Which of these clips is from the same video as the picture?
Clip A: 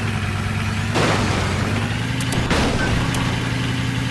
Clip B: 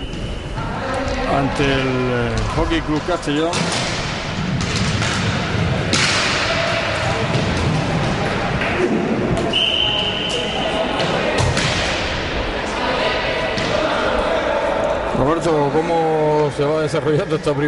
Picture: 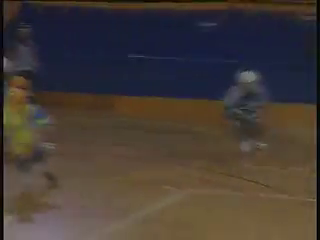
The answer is B